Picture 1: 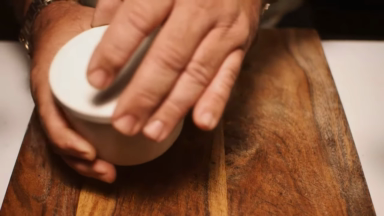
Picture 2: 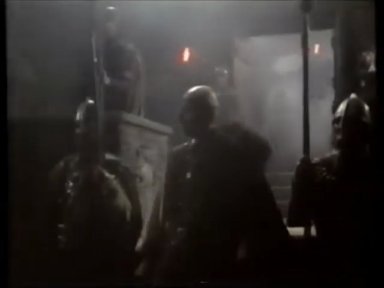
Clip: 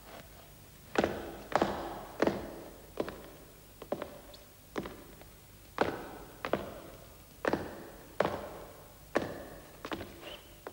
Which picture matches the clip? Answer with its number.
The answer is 2